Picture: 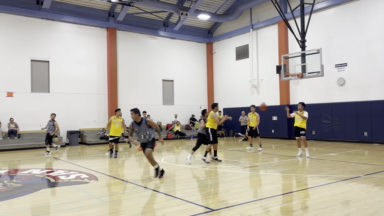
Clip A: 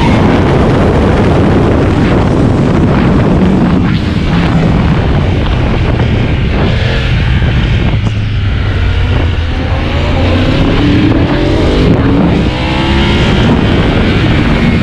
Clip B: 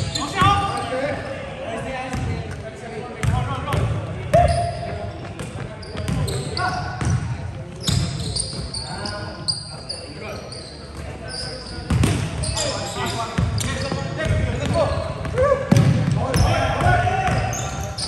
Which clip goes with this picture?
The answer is B